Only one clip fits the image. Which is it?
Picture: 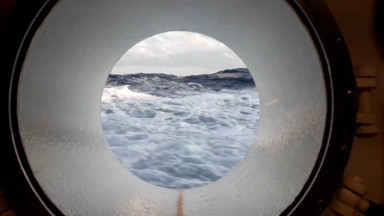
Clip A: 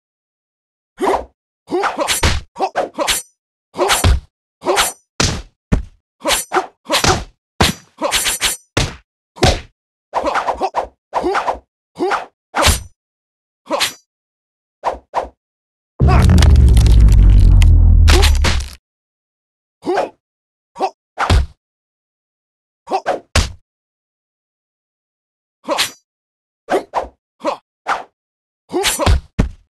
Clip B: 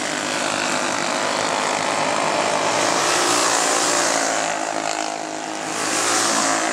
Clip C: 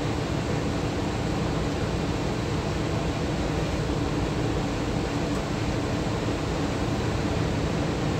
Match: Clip C